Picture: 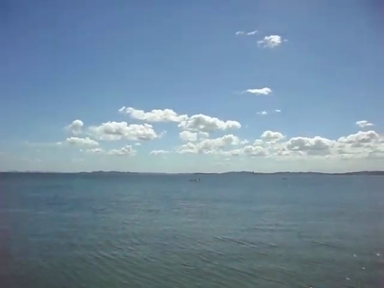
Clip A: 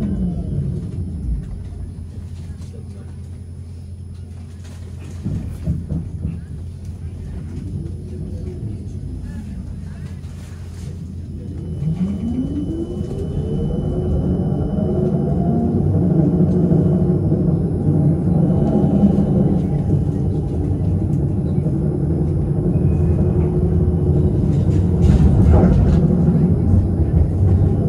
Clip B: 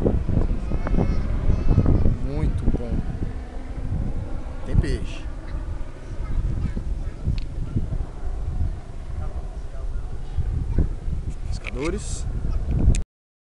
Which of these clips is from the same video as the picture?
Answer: B